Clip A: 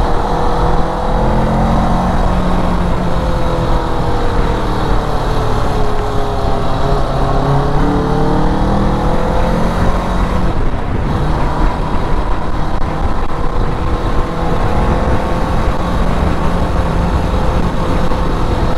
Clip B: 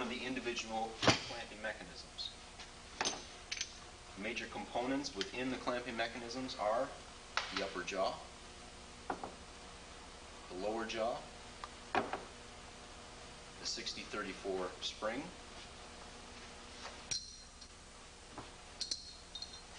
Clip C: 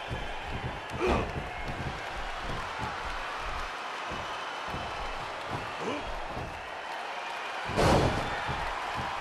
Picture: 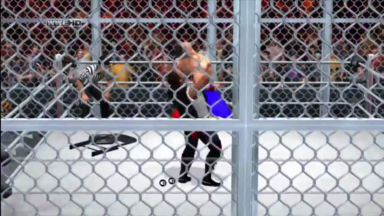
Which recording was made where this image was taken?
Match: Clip C